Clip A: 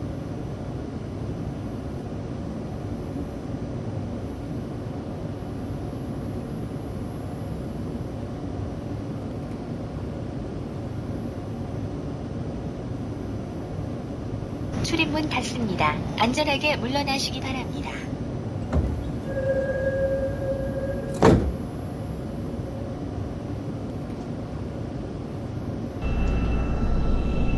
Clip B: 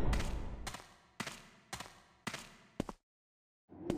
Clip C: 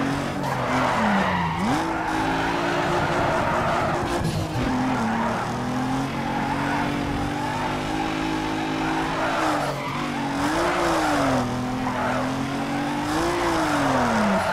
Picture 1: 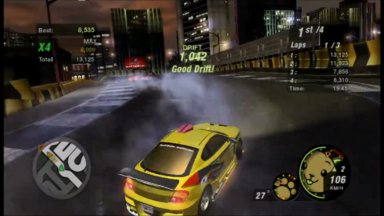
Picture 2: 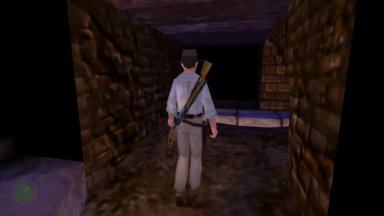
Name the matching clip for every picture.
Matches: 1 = C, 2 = B